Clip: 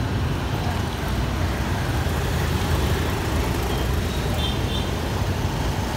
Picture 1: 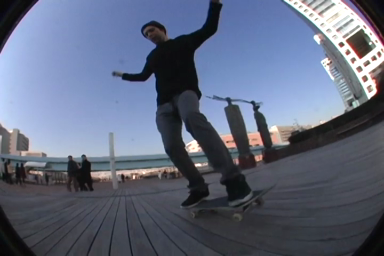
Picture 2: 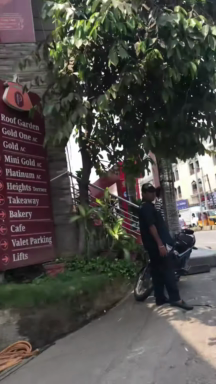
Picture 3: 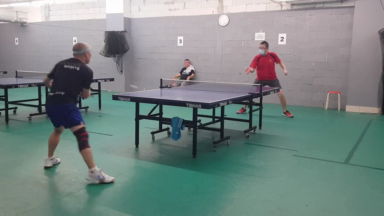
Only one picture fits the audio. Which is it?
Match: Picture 2